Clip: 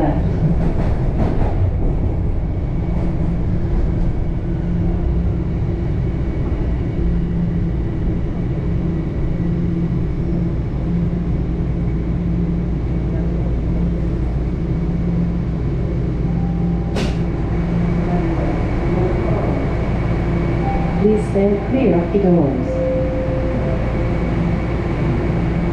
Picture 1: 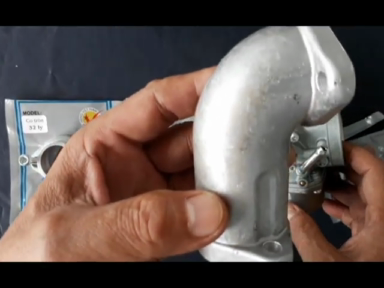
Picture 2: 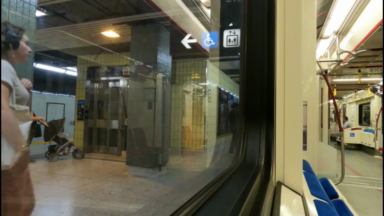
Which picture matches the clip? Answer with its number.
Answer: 2